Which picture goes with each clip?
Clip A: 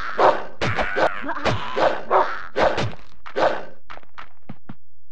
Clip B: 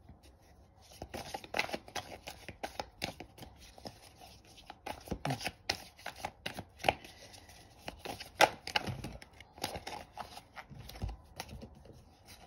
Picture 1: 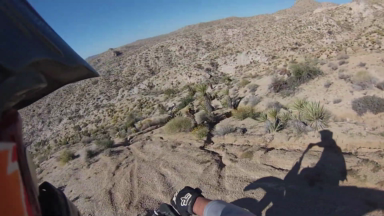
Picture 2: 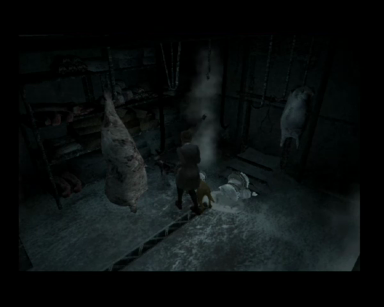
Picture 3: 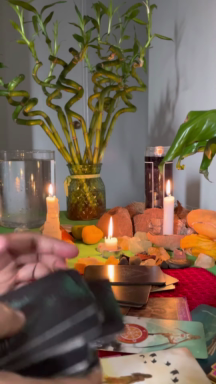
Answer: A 2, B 3